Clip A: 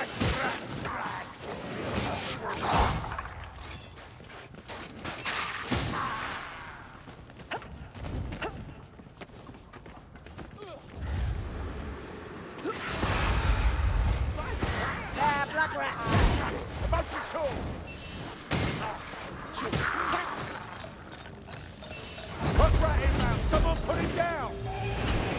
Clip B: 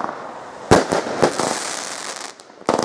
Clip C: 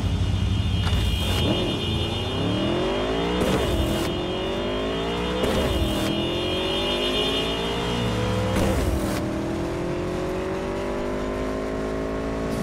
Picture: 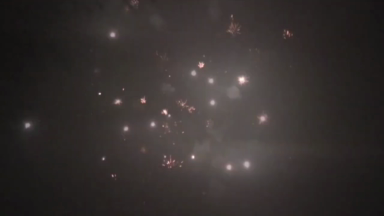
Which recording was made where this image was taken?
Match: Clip B